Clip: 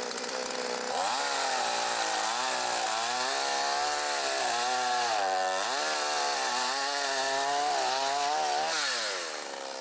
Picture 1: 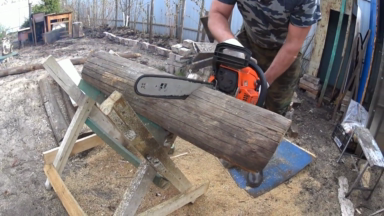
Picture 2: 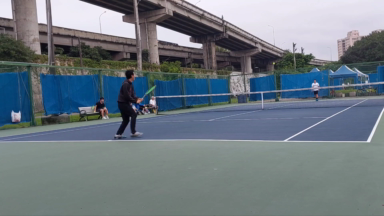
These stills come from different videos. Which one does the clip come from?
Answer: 1